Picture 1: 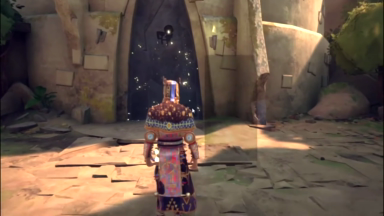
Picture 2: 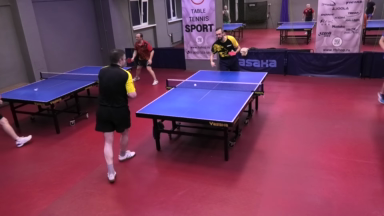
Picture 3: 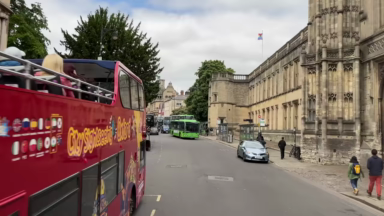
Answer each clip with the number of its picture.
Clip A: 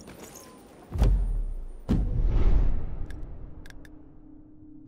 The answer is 1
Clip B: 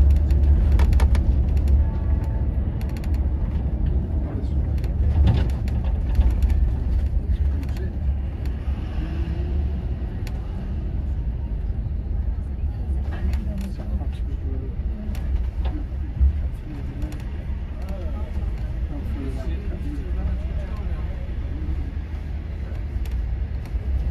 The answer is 3